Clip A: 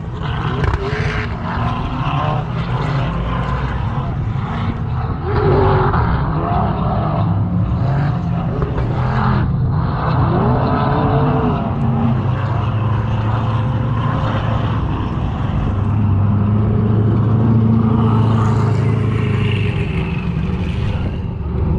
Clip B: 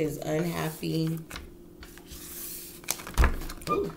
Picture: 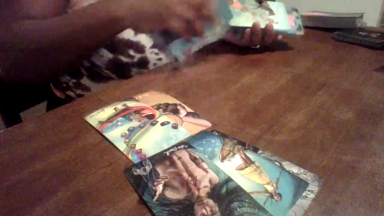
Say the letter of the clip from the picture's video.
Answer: B